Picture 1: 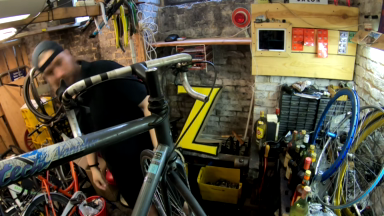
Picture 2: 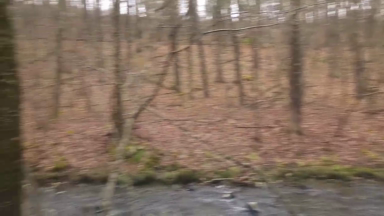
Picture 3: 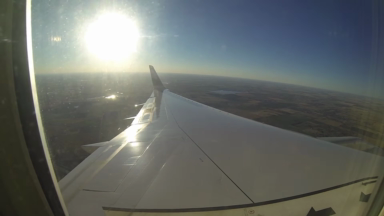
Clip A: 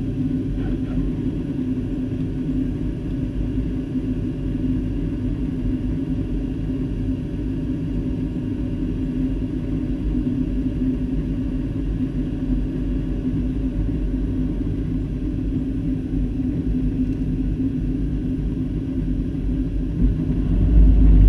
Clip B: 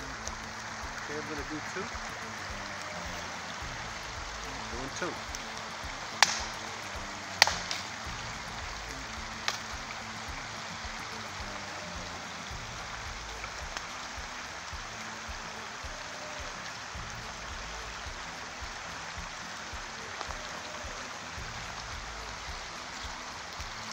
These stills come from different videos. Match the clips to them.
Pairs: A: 3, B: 2